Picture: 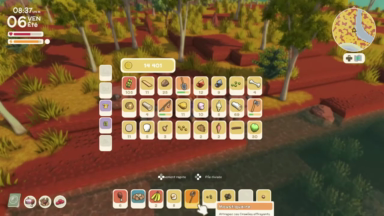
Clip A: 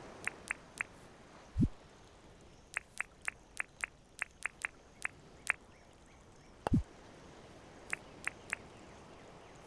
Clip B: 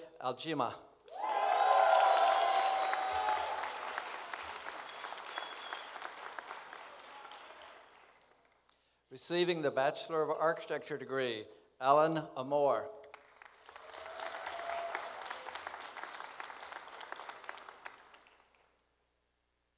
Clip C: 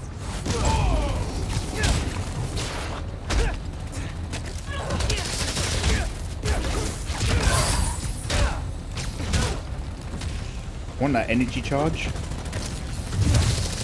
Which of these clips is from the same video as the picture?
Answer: A